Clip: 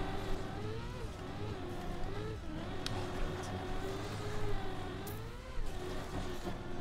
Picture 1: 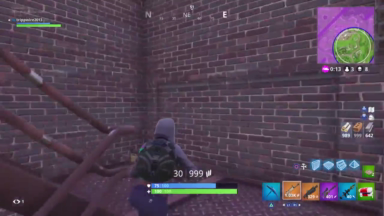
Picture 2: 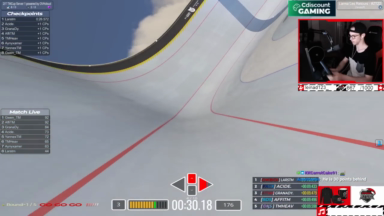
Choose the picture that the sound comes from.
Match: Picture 2